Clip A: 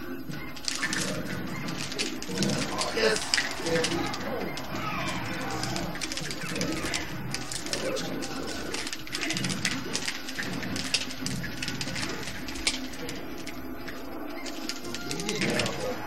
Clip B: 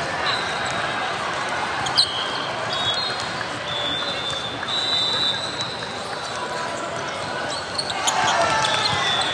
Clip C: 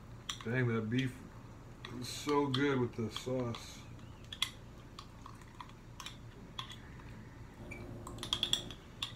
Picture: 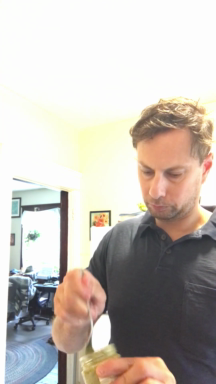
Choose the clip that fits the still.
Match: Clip C